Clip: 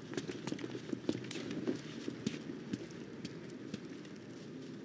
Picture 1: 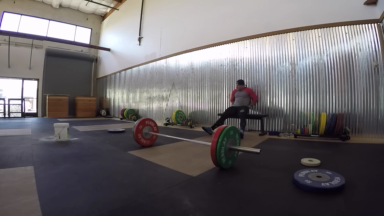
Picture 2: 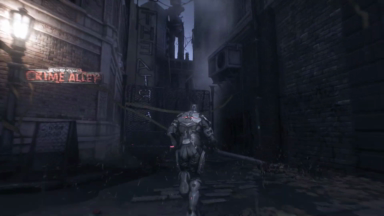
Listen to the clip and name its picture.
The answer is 2